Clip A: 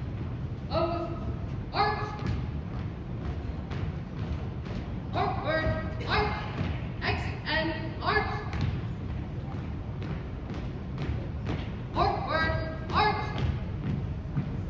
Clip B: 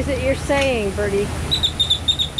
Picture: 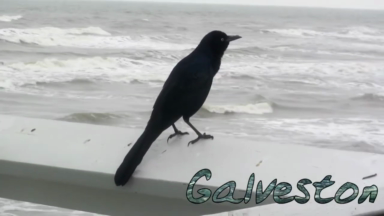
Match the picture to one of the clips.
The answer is B